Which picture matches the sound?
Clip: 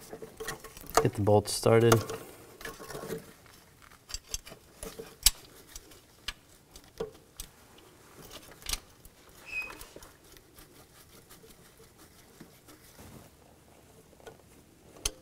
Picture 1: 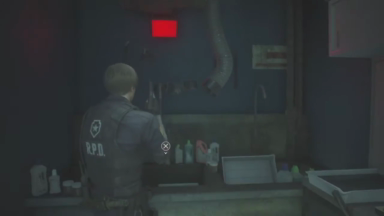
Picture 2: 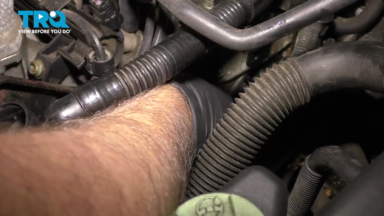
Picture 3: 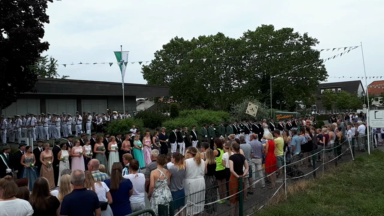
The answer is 2